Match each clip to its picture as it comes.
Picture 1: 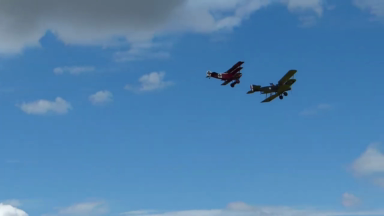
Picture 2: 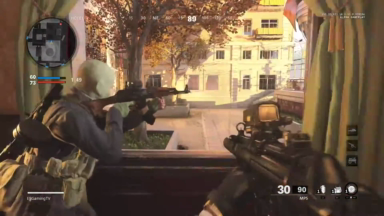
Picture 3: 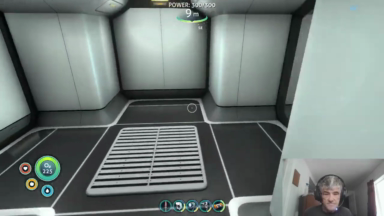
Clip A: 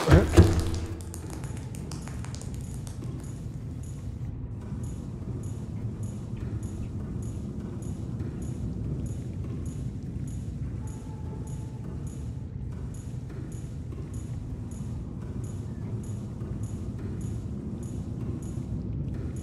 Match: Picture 3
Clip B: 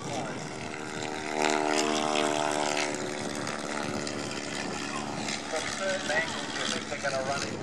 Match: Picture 1